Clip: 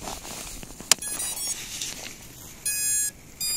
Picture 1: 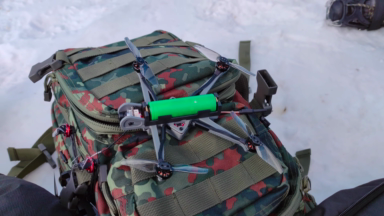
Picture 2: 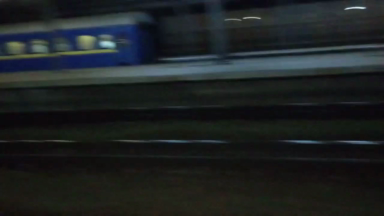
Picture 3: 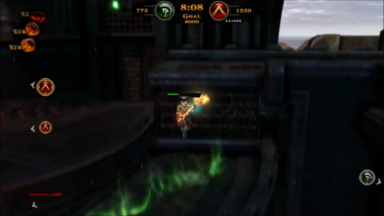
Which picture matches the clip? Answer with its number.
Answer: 1